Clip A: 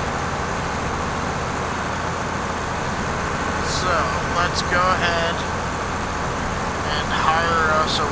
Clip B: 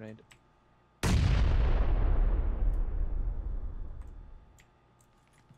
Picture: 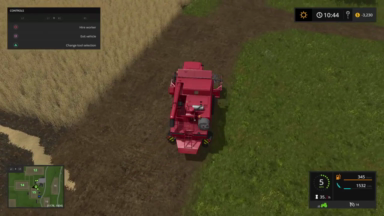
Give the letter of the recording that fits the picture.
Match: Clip A